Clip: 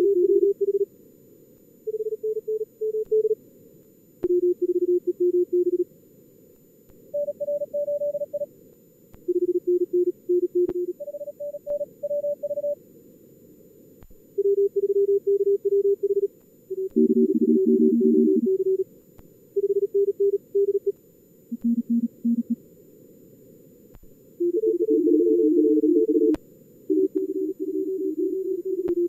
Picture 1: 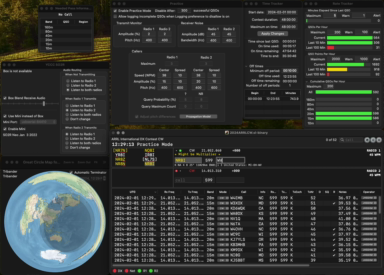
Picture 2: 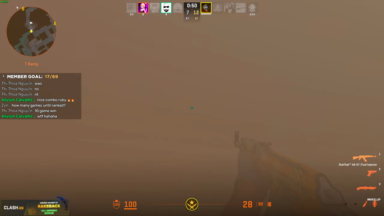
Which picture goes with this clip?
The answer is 1